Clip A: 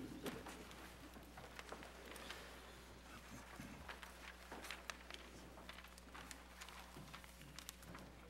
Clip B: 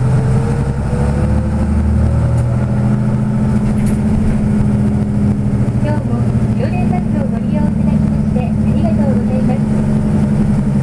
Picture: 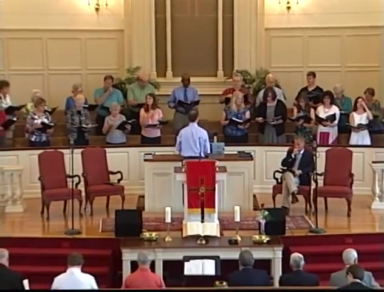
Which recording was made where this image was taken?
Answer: A